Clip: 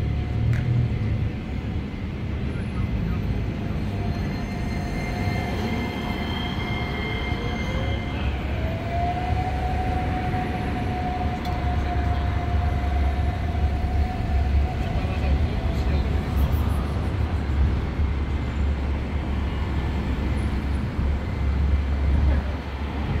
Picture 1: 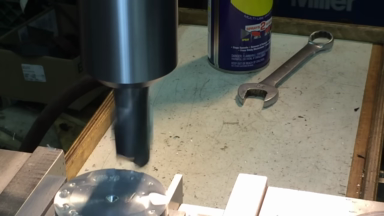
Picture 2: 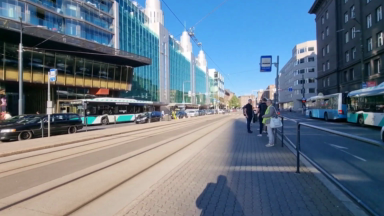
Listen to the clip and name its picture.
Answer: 2